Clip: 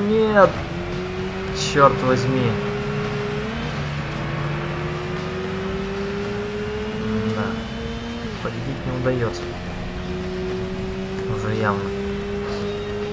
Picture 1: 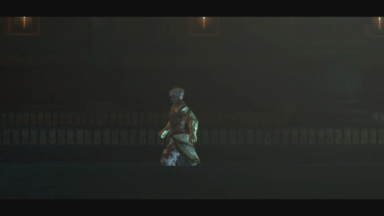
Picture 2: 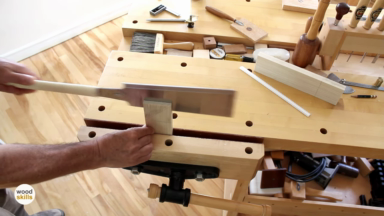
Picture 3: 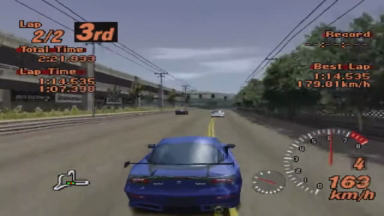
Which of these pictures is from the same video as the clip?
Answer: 3